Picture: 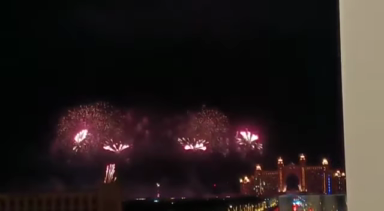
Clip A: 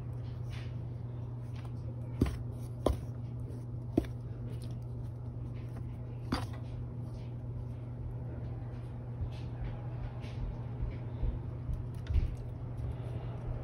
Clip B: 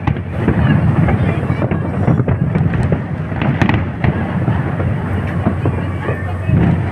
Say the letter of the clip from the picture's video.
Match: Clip B